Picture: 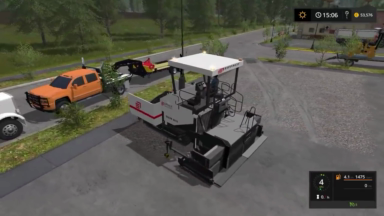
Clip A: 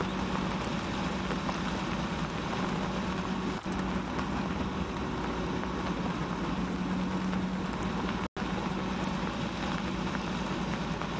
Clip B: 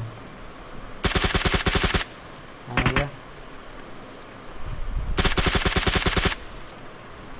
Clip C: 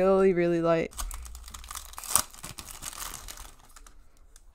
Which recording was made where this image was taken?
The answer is A